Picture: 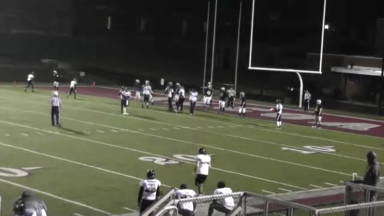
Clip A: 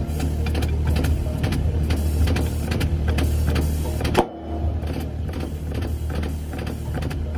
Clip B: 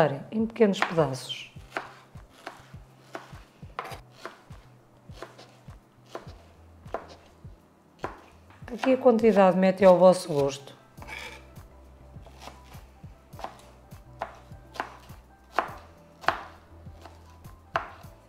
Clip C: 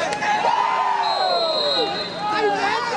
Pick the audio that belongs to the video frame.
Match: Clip C